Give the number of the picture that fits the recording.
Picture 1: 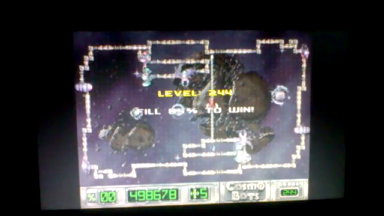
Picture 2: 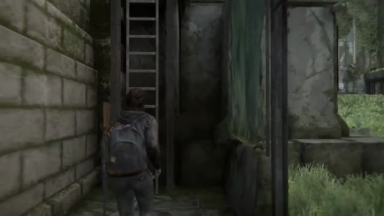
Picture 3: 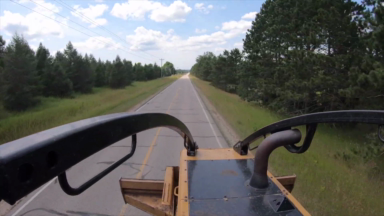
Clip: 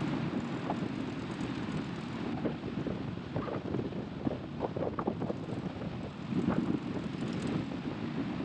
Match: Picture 3